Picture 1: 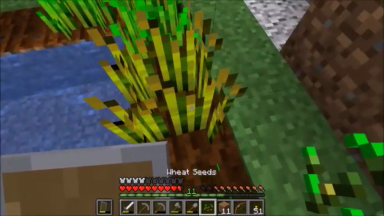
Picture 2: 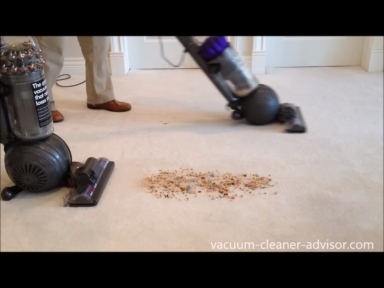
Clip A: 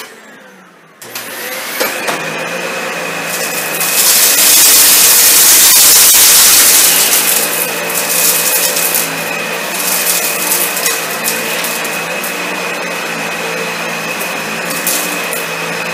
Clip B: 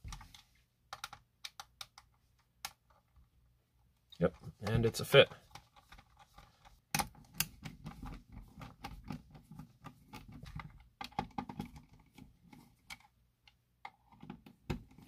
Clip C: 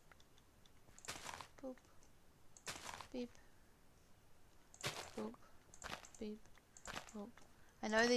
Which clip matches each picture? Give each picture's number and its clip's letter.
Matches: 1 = C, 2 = A